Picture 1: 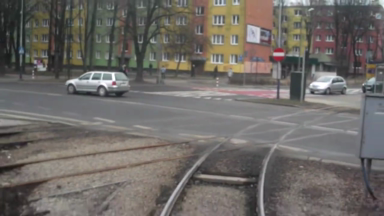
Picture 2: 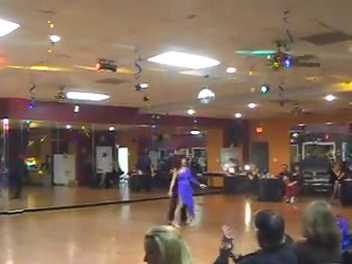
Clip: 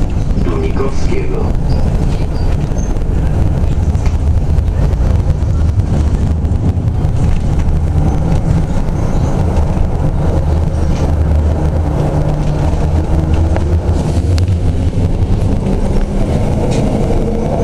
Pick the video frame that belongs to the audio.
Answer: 1